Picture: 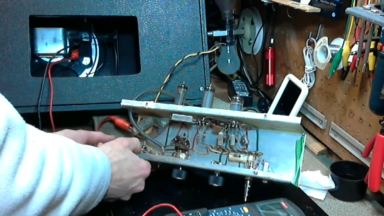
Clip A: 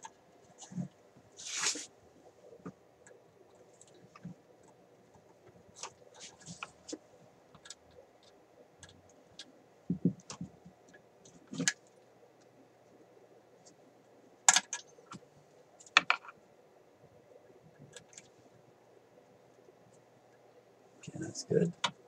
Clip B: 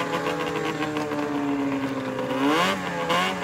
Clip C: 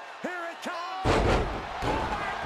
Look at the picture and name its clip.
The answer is A